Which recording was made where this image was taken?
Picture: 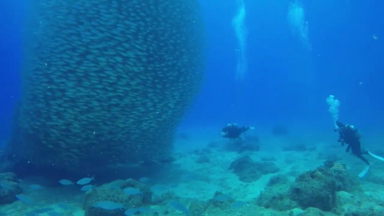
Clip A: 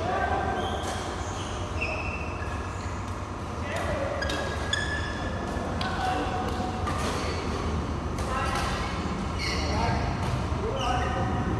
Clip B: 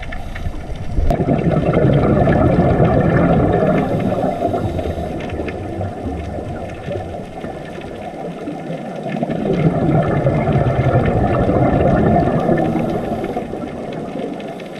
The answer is B